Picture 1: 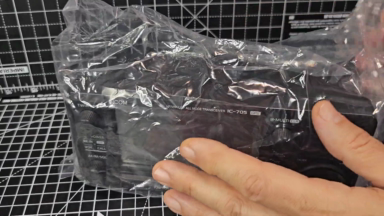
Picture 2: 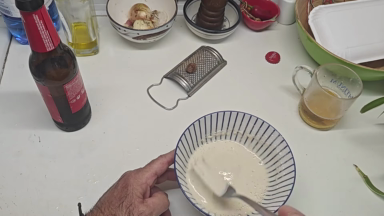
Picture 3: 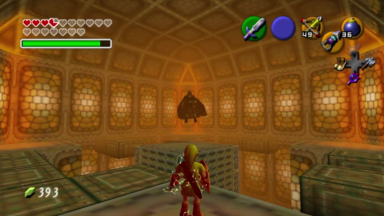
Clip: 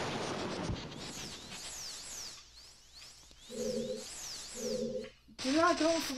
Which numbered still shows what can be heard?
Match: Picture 3